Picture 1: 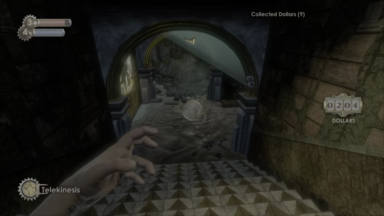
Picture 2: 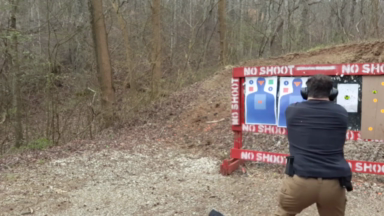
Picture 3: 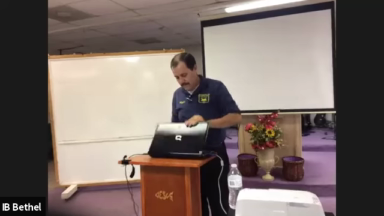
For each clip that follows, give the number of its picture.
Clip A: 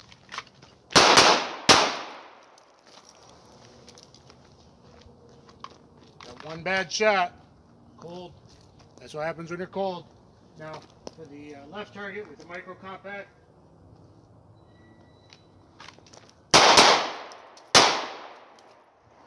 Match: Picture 2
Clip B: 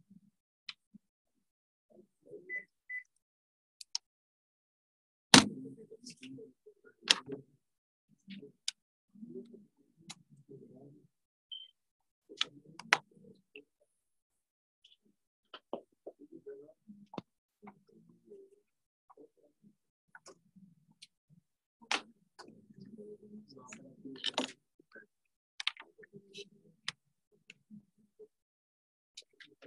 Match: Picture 3